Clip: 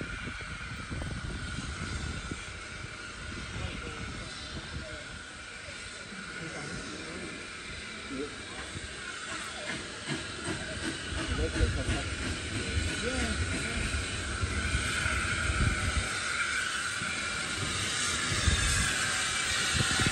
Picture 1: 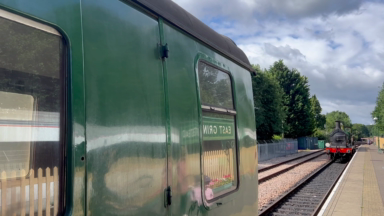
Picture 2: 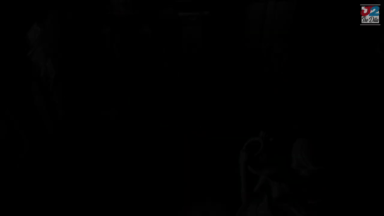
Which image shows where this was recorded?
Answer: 1